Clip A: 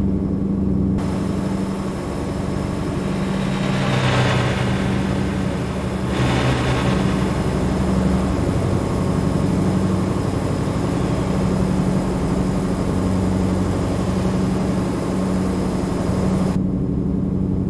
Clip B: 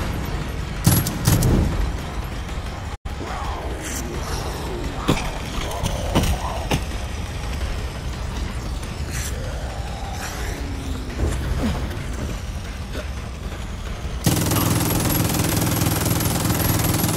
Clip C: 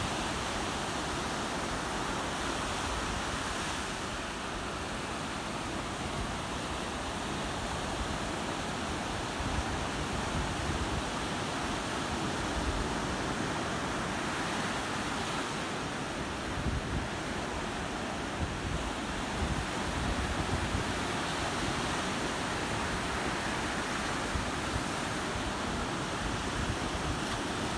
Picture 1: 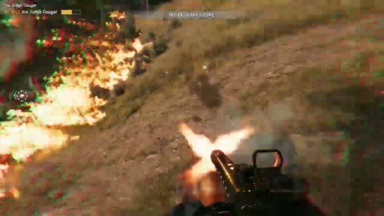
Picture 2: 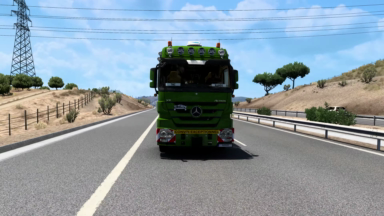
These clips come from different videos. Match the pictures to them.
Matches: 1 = B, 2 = A